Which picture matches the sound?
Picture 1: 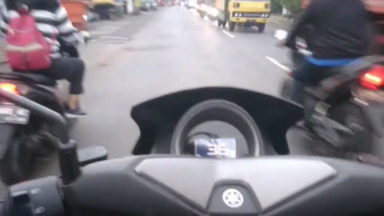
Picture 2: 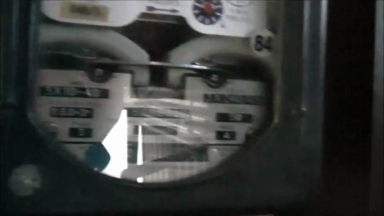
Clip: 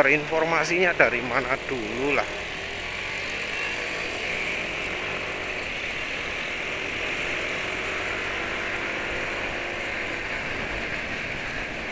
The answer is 1